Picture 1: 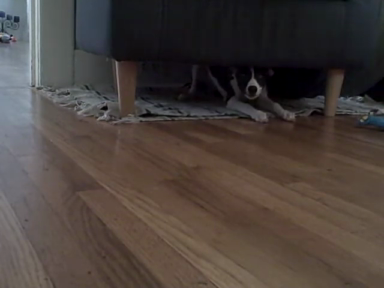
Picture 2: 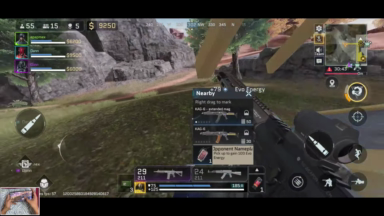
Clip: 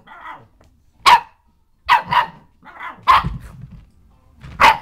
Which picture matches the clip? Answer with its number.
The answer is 1